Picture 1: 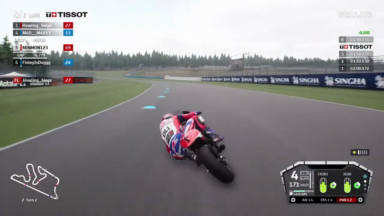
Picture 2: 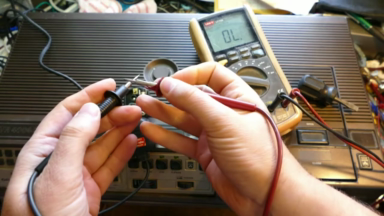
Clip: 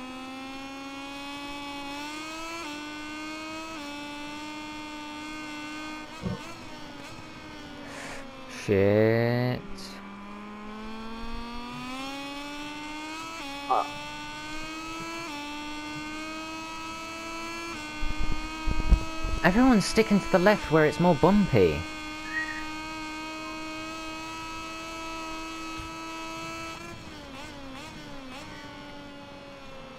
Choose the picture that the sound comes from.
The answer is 1